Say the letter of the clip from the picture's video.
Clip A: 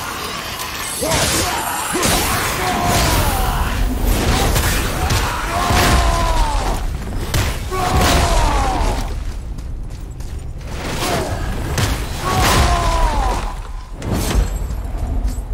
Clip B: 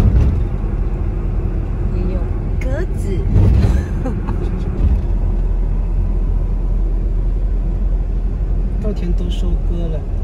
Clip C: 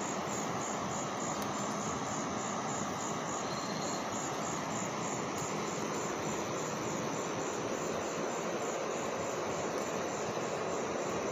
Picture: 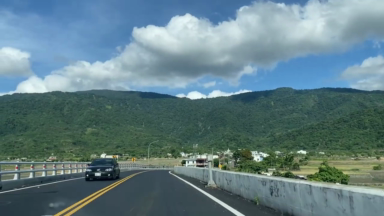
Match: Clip B